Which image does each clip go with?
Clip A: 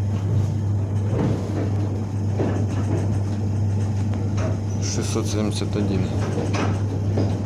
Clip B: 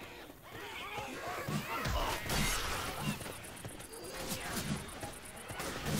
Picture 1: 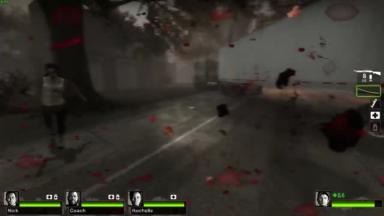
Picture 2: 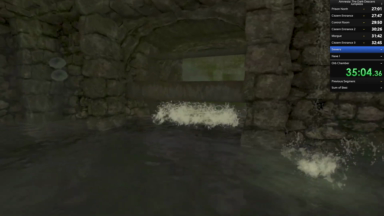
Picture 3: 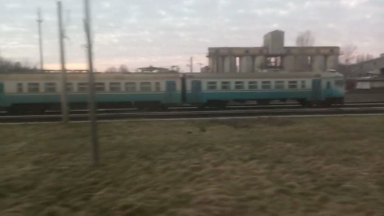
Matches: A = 3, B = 1